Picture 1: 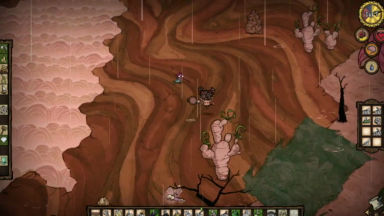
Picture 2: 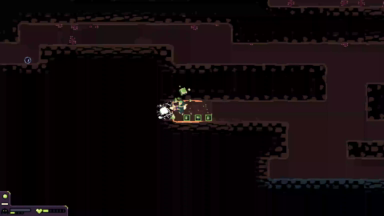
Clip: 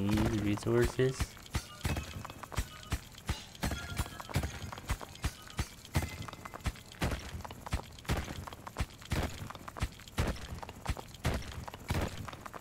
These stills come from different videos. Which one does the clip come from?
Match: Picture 2